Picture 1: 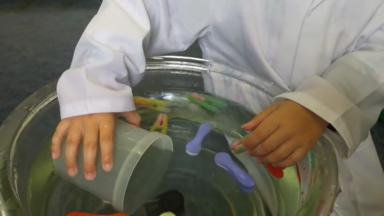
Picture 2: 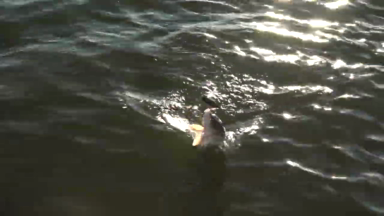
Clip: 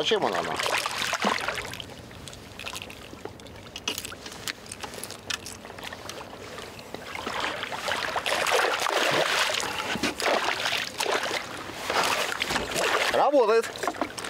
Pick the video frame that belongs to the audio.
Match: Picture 2